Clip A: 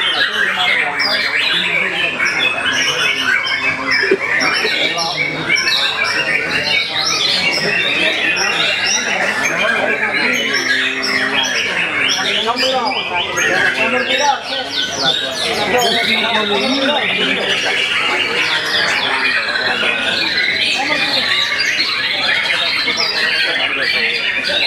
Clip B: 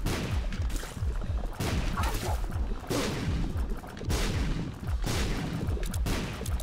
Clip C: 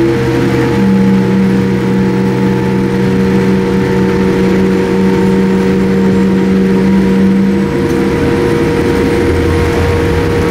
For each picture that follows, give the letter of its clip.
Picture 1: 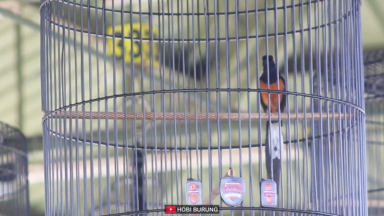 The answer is A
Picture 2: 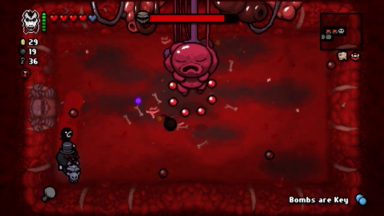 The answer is B